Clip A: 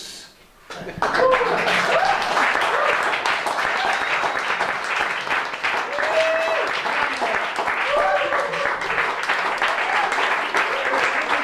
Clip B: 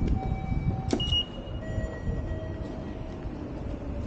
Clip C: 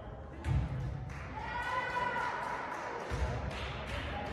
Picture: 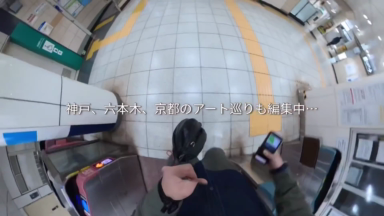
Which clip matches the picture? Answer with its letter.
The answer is B